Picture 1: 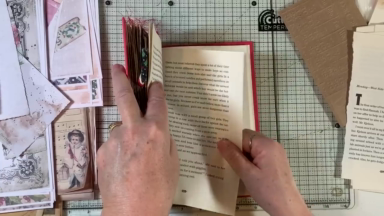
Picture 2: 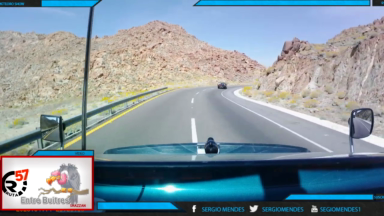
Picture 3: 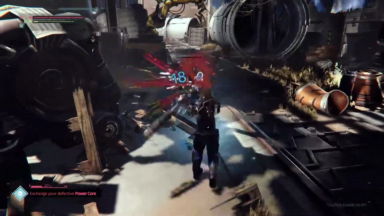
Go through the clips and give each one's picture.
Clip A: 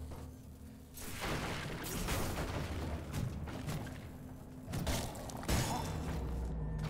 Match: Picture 3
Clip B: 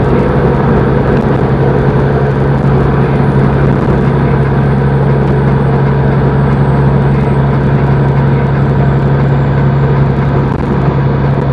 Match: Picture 2